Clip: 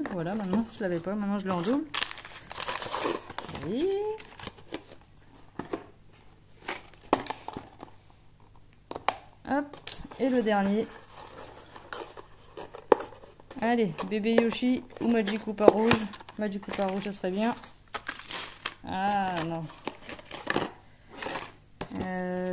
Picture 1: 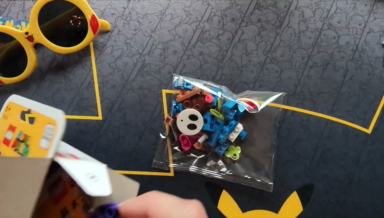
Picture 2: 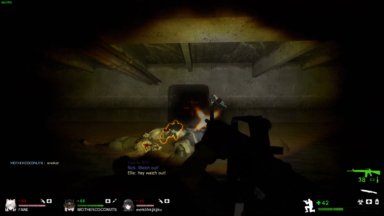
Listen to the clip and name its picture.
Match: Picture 1